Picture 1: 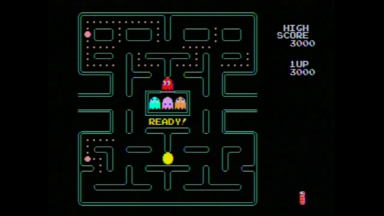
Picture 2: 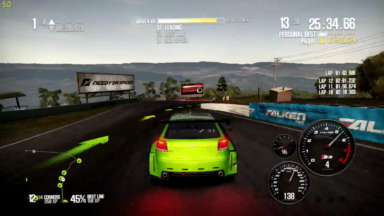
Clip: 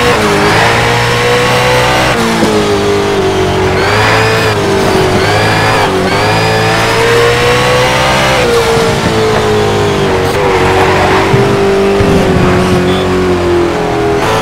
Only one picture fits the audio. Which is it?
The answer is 2